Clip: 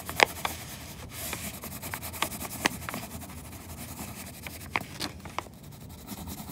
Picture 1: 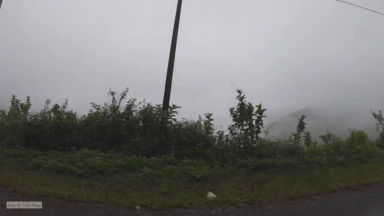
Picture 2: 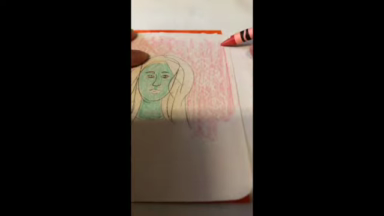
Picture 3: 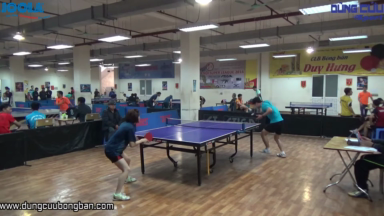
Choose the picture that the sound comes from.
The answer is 2